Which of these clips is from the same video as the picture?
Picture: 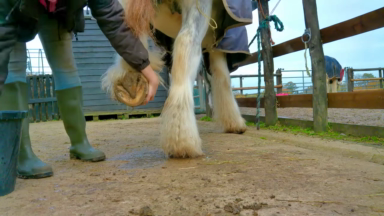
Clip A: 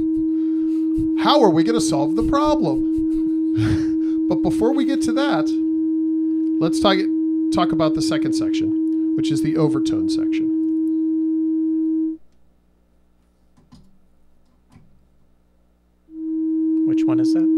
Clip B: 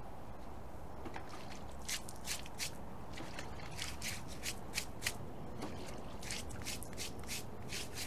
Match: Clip B